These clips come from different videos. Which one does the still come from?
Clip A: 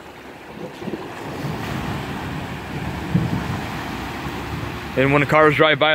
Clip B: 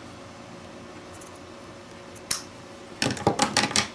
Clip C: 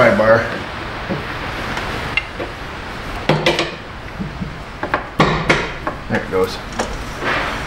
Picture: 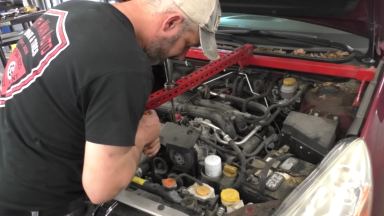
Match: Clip C